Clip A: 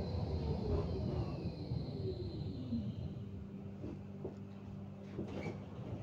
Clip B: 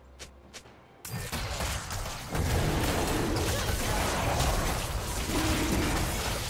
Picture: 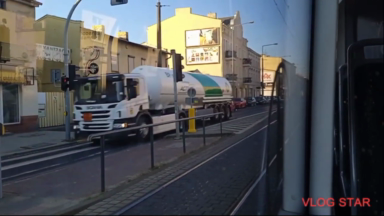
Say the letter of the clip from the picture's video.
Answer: A